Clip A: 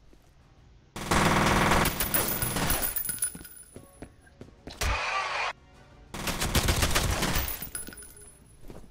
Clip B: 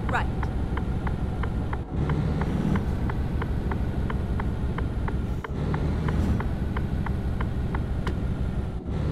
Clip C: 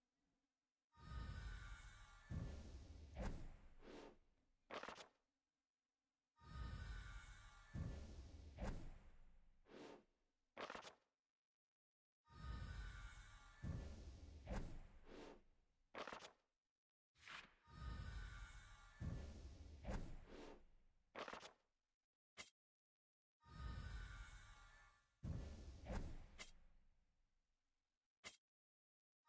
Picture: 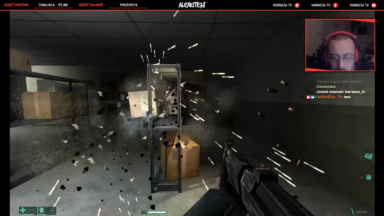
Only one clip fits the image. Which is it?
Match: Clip A